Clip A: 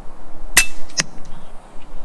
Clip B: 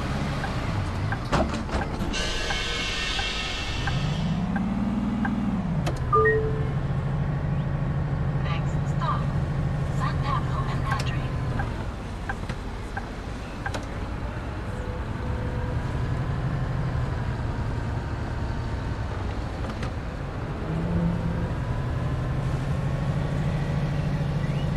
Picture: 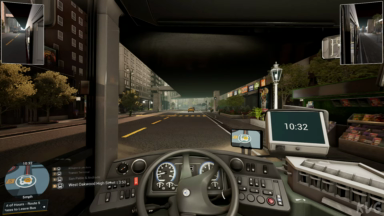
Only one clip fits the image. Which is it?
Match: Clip B